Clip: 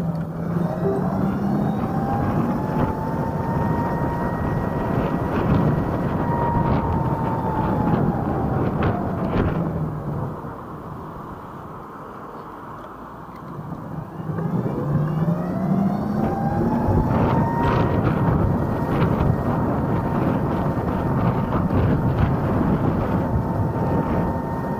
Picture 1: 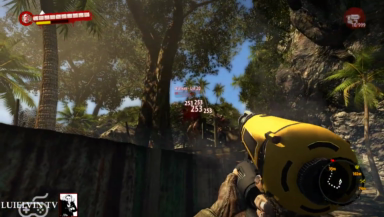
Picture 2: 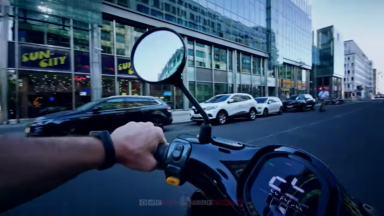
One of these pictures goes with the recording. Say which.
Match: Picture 2